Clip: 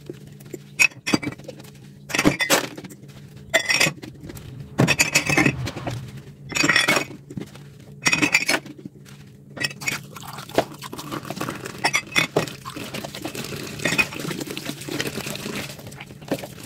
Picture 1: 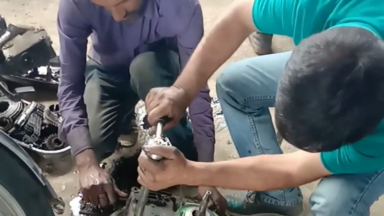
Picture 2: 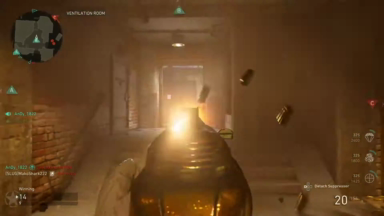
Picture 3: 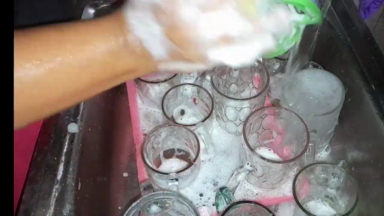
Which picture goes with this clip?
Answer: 3